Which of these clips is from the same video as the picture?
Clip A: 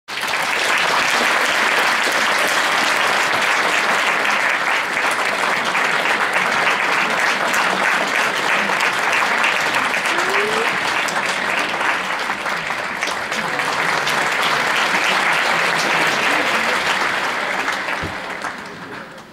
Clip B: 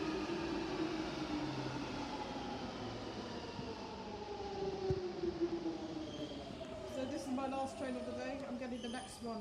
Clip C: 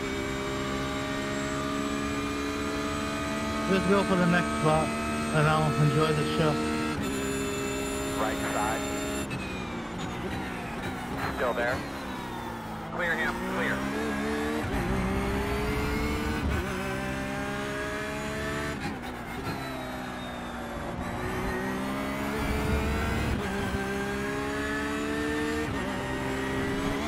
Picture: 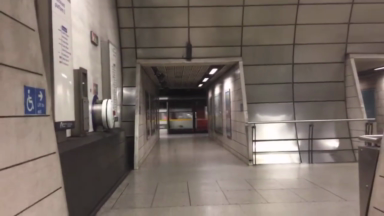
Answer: B